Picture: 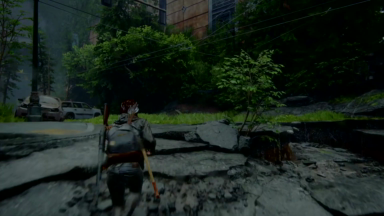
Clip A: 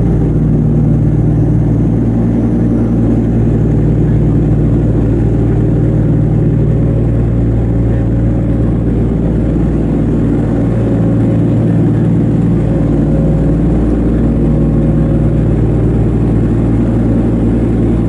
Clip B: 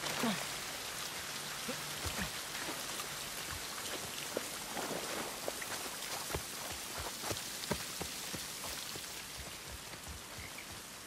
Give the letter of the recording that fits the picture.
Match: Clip B